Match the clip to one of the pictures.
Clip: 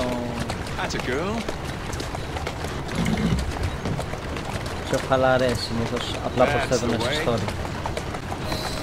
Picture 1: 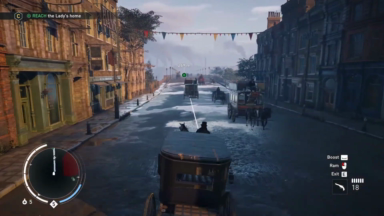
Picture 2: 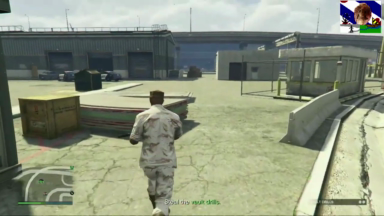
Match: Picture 1